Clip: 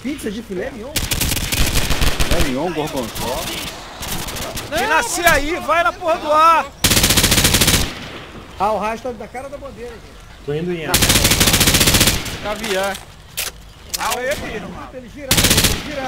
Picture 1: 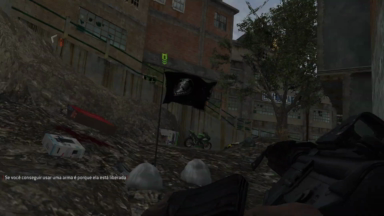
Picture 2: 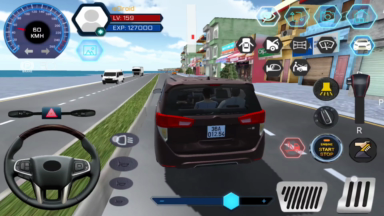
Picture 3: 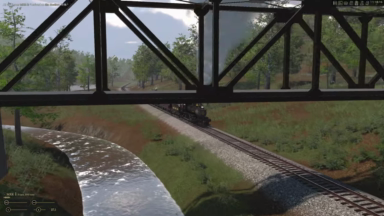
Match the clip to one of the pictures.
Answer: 1